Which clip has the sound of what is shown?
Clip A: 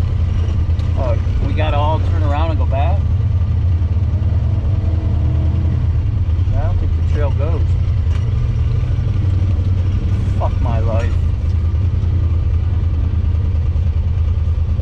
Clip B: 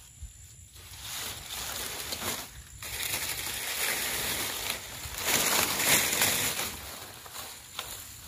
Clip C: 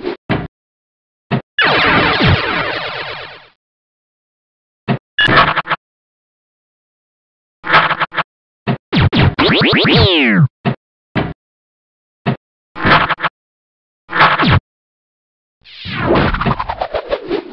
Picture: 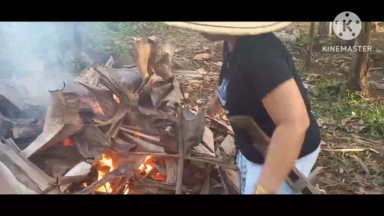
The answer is B